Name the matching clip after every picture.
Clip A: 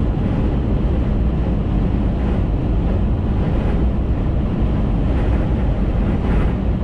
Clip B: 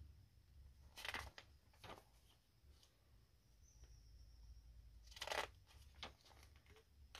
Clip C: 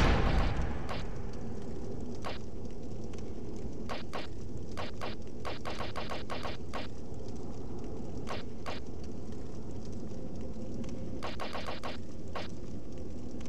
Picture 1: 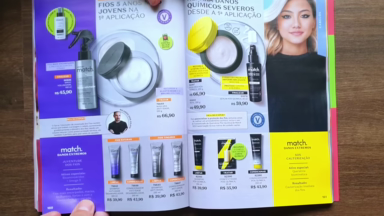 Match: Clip B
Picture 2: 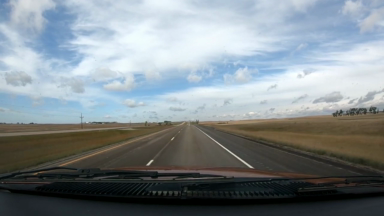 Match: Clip A